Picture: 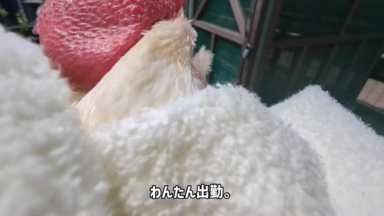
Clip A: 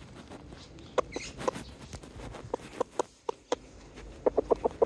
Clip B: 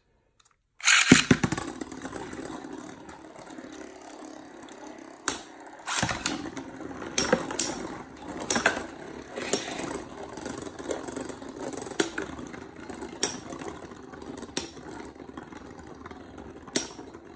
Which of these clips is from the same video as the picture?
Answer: A